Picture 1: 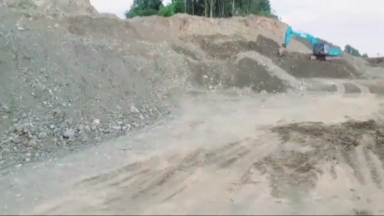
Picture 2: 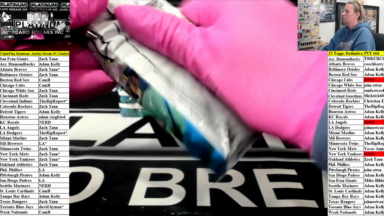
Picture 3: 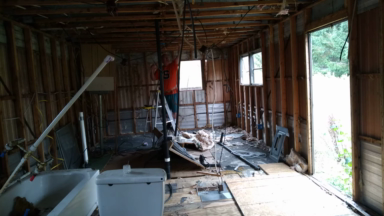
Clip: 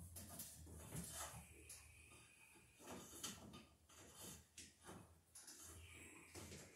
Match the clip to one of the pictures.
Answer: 3